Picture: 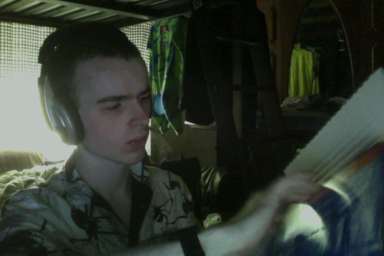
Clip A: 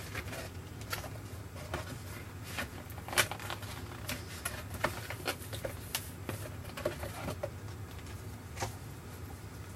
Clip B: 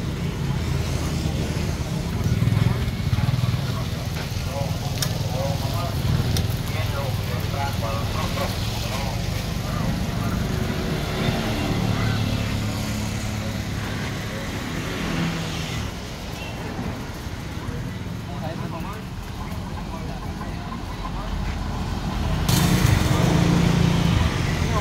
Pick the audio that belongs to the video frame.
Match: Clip A